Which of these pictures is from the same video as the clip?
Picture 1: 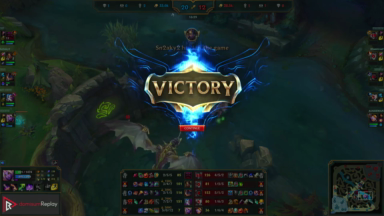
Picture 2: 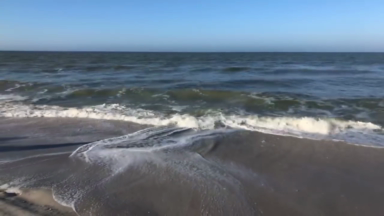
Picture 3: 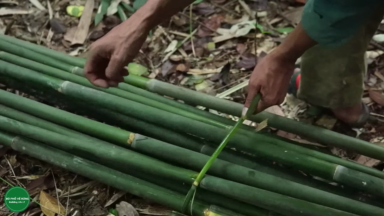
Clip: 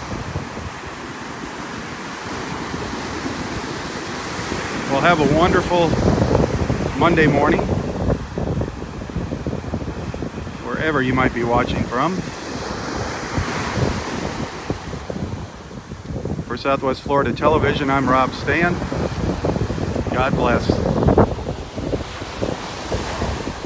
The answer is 2